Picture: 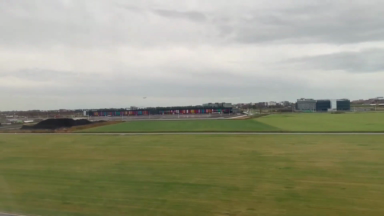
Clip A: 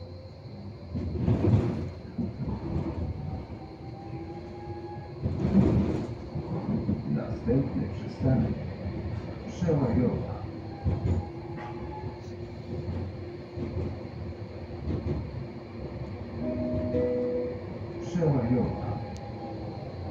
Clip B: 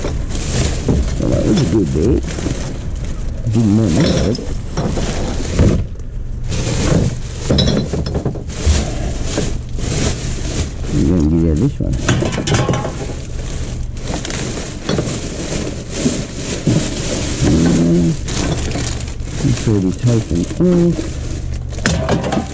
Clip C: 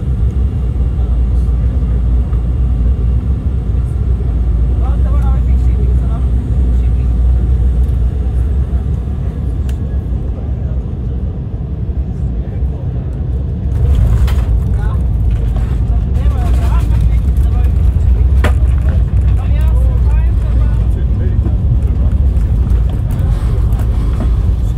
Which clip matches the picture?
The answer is C